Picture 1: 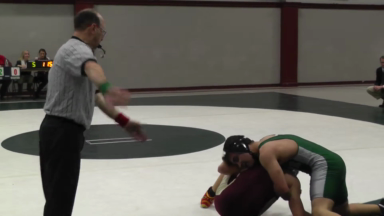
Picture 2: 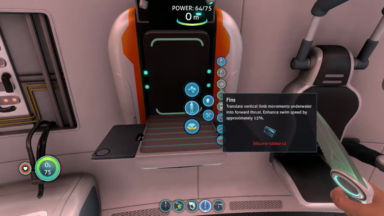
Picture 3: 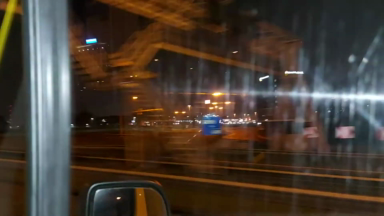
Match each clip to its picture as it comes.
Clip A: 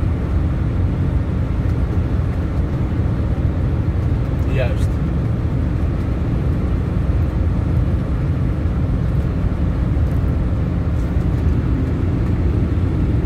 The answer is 3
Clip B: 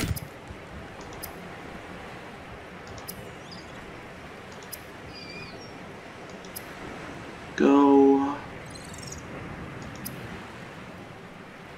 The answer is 2